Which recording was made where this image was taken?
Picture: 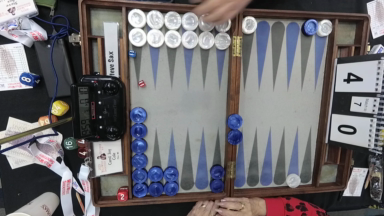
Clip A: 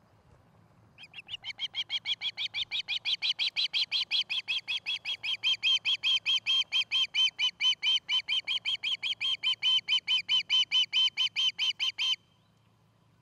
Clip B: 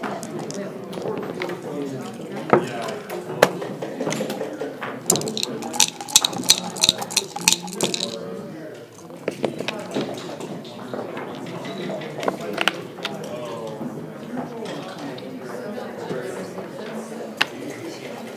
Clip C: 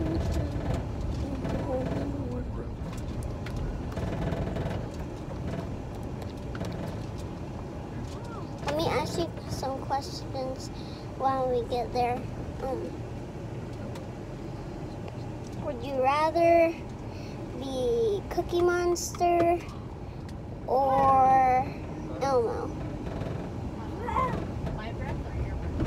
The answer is B